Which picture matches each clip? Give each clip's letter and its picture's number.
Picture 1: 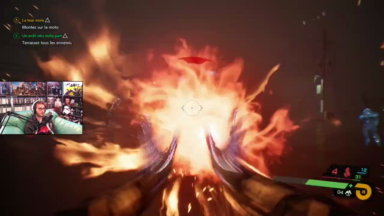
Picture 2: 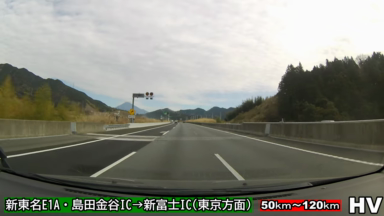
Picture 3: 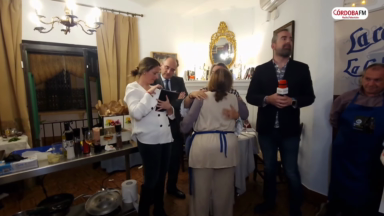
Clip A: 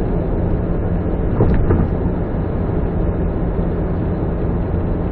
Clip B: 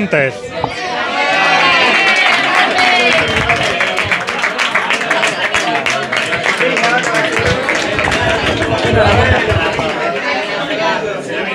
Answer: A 2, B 3